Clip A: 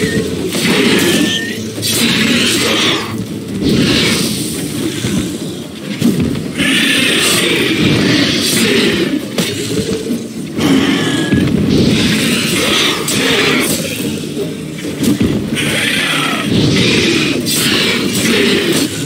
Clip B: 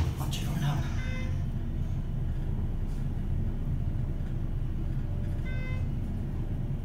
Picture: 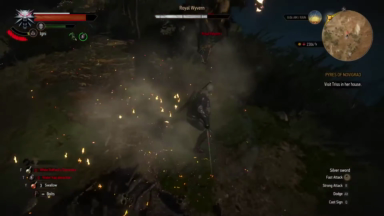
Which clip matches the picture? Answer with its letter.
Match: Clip A